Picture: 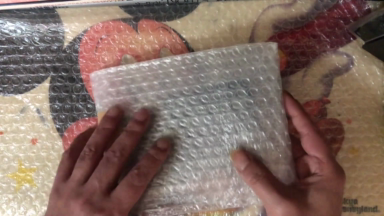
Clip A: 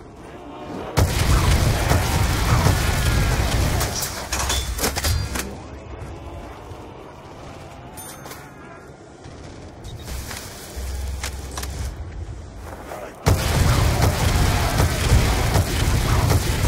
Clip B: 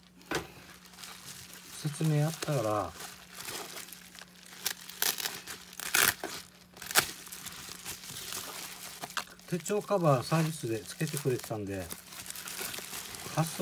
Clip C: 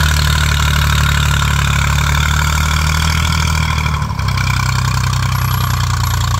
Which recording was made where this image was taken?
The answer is B